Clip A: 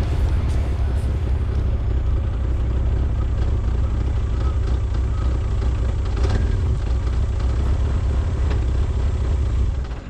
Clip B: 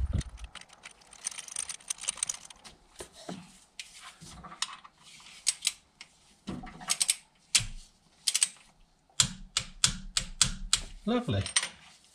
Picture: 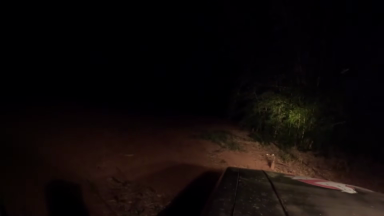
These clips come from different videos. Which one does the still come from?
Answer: A